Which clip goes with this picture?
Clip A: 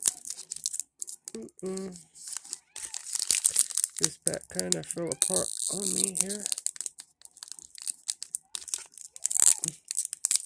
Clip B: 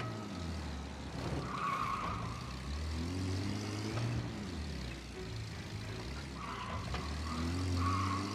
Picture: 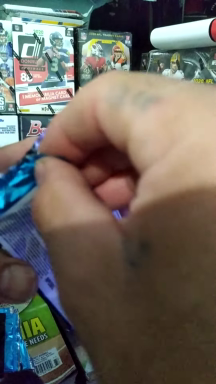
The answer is A